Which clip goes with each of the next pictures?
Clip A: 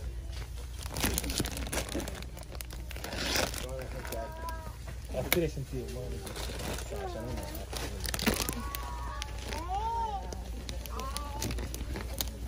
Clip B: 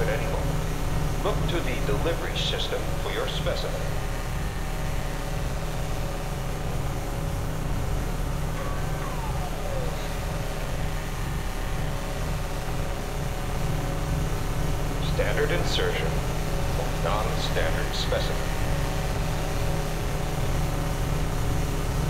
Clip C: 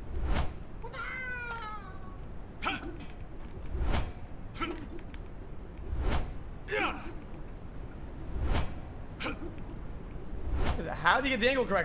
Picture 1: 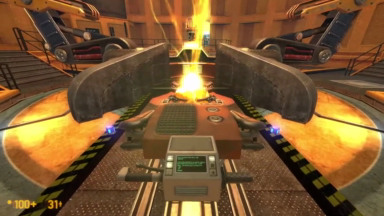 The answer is B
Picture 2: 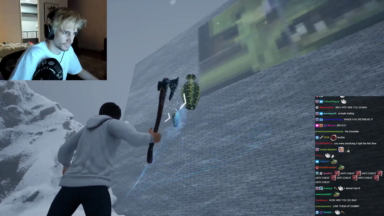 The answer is C